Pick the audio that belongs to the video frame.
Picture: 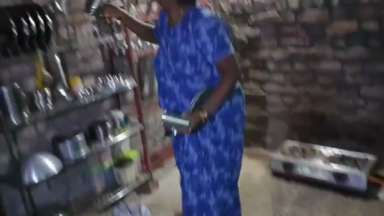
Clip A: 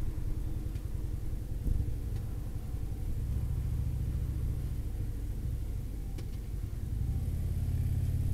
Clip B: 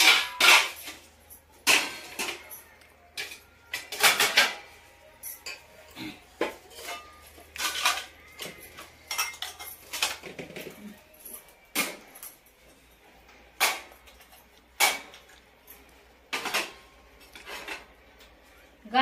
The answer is B